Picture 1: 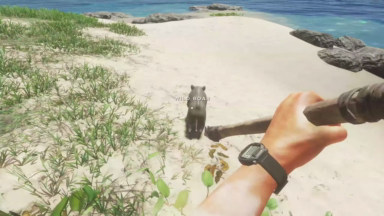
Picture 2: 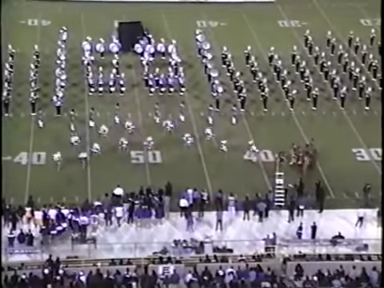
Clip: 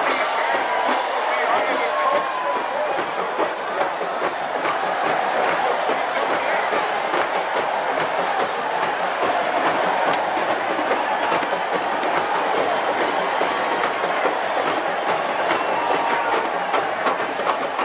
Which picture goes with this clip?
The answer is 2